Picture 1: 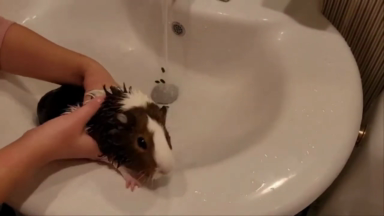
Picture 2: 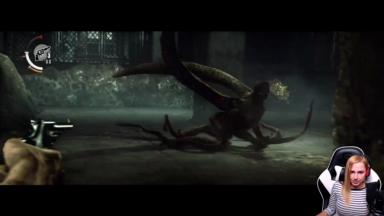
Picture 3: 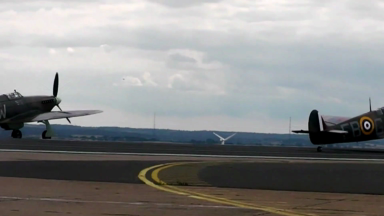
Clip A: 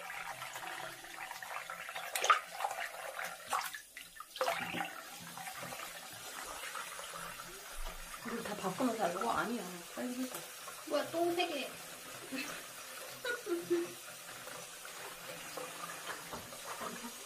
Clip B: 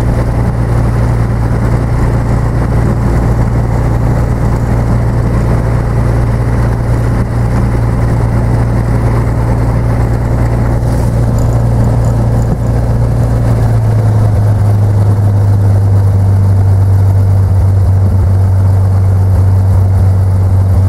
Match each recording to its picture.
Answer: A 1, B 3